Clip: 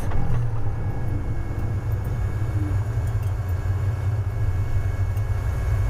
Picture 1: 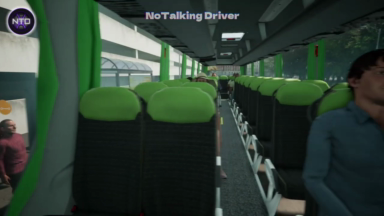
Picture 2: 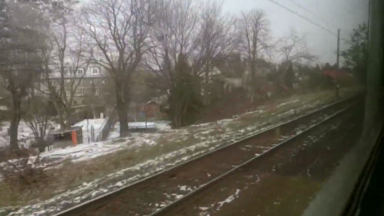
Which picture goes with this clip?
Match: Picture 1